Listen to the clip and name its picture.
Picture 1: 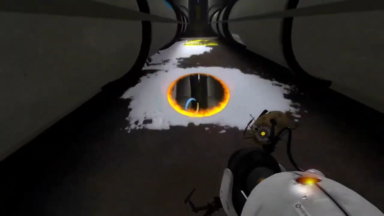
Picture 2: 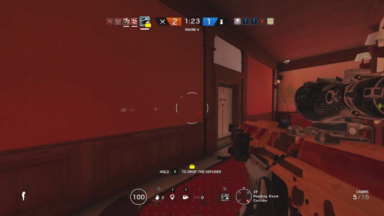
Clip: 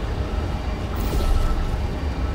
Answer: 1